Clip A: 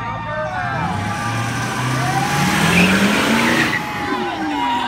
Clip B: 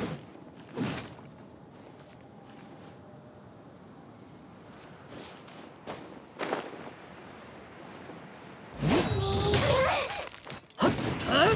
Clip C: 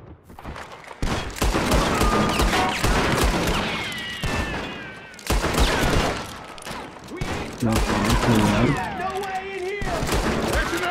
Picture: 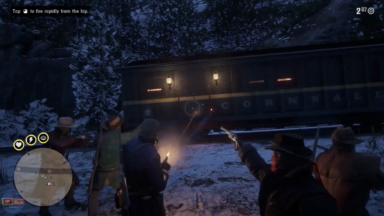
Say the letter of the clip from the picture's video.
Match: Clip C